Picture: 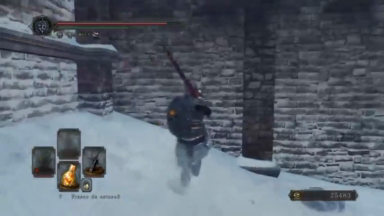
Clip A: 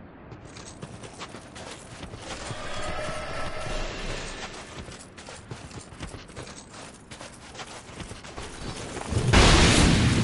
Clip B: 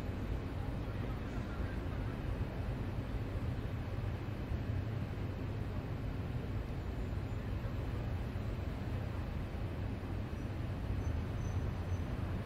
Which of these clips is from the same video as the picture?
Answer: A